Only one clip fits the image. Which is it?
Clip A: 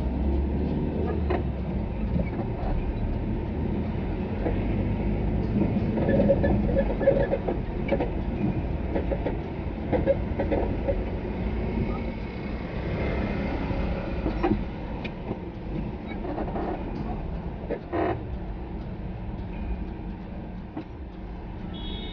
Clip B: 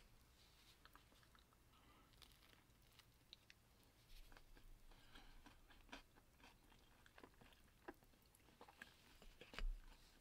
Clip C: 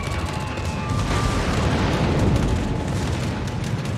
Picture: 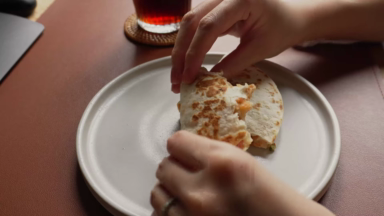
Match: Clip B